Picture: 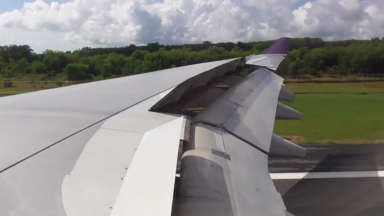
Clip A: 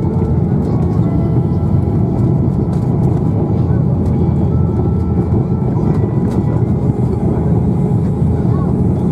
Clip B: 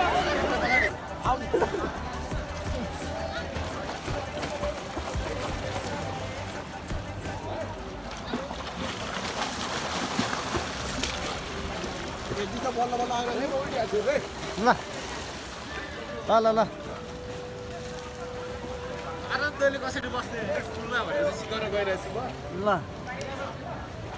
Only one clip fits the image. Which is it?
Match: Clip A